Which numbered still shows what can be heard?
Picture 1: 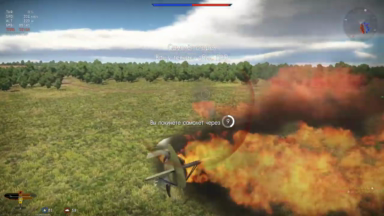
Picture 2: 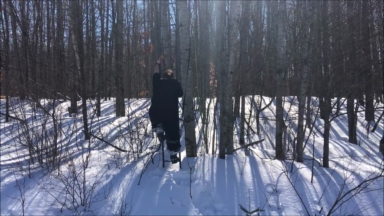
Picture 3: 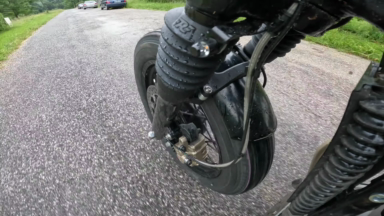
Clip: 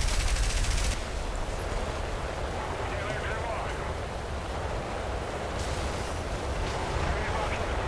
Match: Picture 1